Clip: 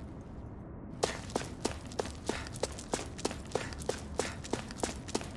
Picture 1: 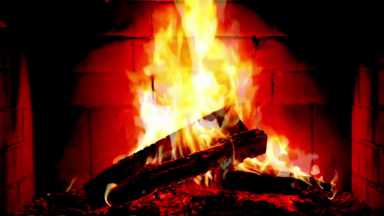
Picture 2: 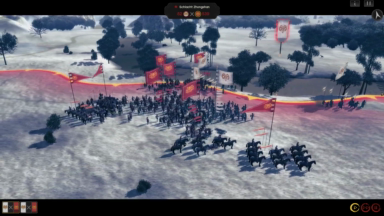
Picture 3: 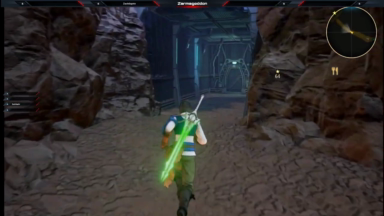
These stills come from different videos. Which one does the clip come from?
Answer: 3